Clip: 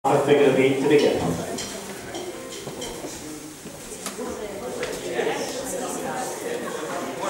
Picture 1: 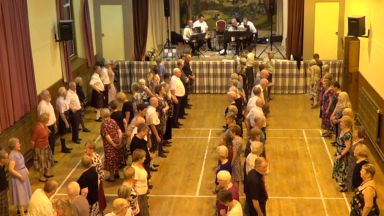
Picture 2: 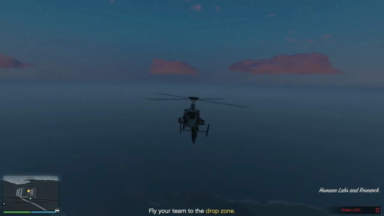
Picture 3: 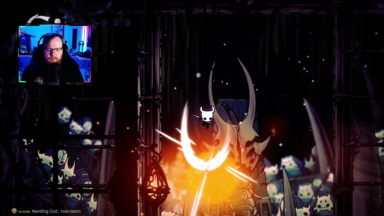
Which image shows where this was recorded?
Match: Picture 1